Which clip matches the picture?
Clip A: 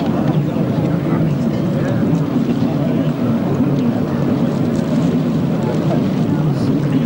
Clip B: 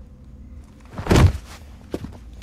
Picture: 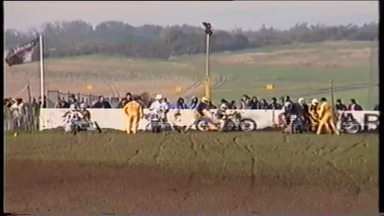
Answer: A